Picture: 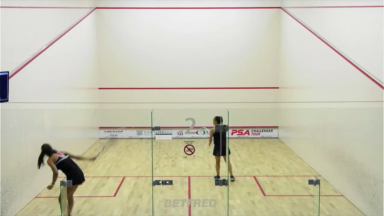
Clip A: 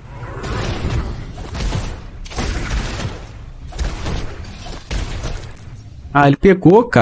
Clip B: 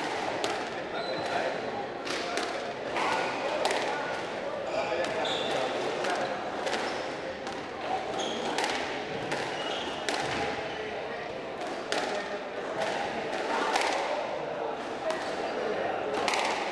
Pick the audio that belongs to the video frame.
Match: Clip B